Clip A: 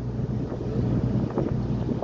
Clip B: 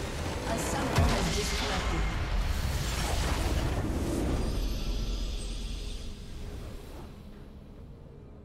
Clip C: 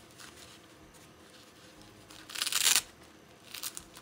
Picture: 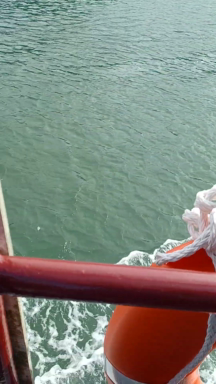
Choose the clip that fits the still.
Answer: A